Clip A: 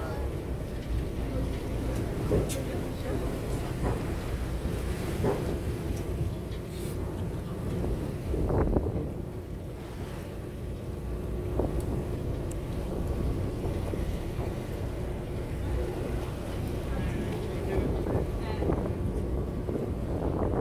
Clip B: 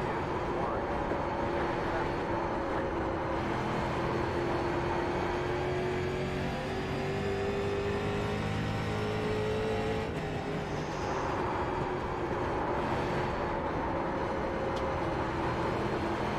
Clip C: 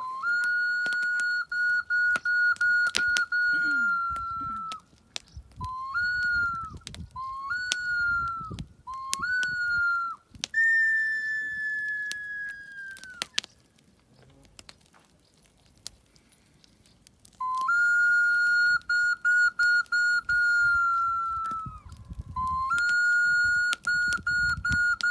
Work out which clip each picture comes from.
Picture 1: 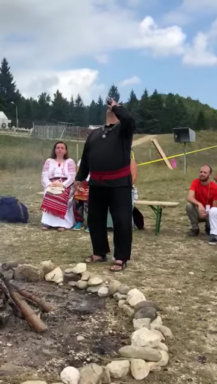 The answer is C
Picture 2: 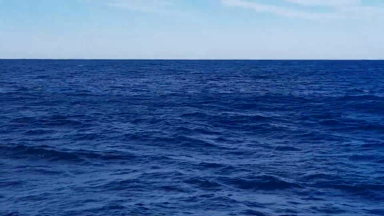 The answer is A